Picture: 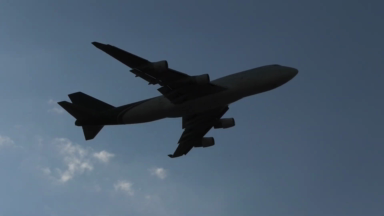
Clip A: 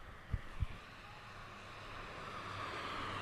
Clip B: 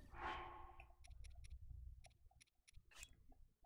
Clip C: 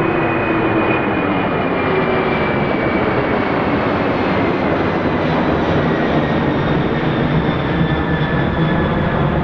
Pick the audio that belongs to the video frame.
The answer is C